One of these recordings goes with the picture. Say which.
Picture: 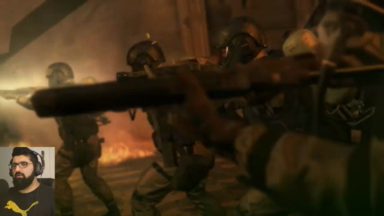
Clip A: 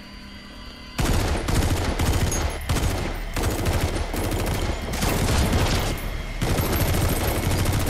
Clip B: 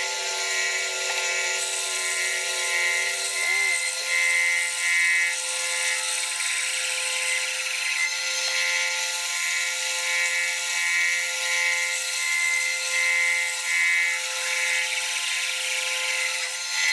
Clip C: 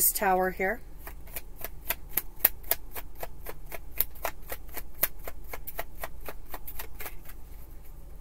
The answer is A